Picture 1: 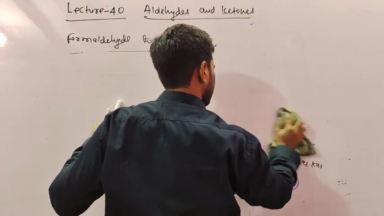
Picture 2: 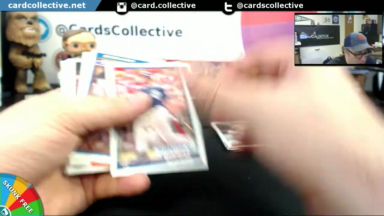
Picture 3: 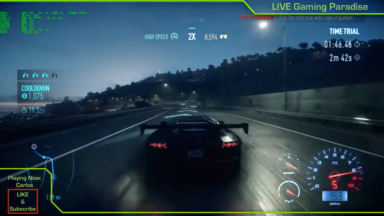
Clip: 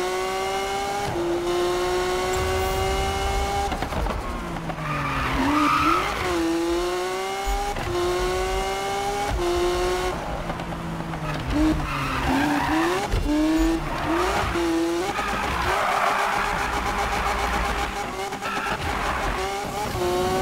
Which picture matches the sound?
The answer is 3